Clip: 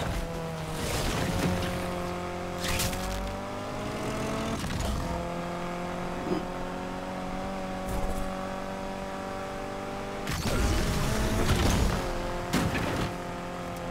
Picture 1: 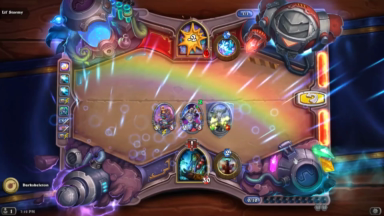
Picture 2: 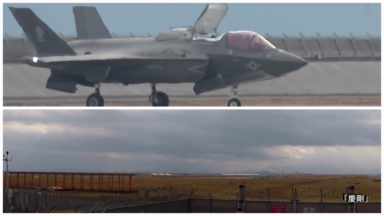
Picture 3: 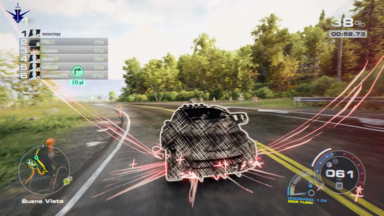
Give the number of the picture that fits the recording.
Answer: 3